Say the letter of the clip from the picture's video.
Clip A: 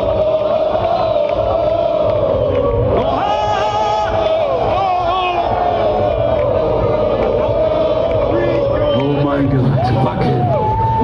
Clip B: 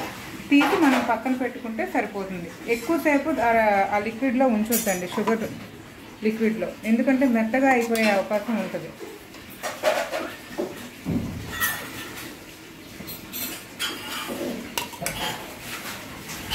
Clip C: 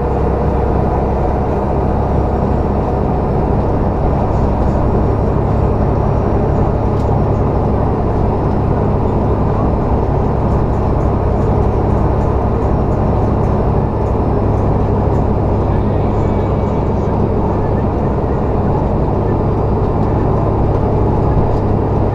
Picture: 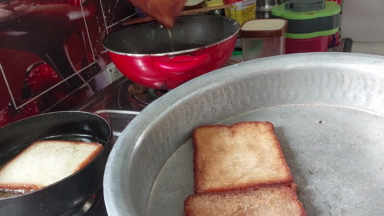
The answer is B